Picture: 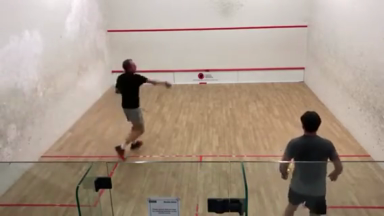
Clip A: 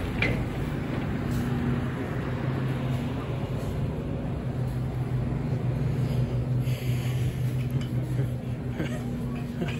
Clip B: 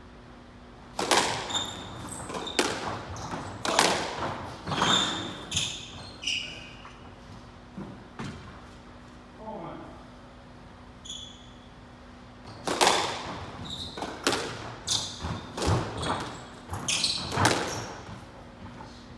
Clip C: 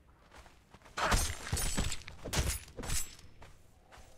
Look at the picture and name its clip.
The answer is B